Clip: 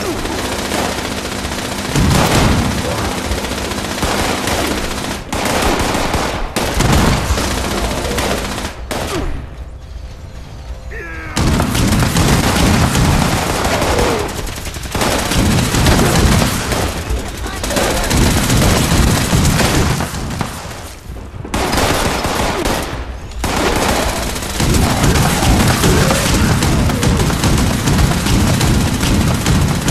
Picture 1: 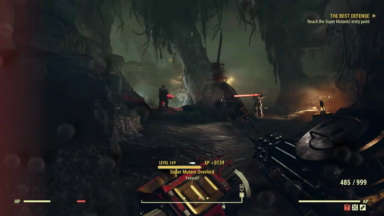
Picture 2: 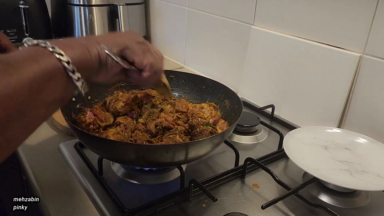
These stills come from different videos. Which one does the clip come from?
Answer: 1